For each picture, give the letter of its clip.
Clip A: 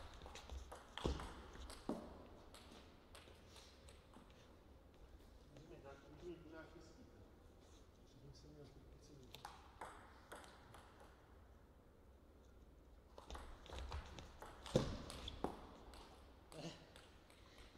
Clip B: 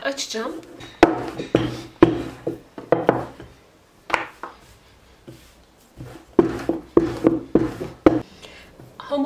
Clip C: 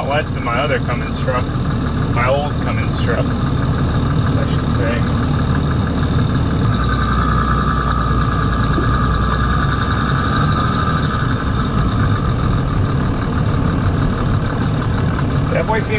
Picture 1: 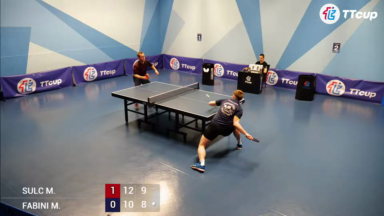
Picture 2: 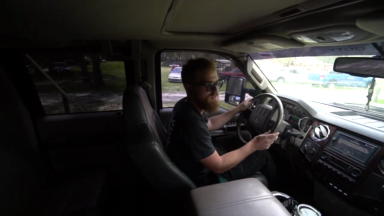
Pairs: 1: A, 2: C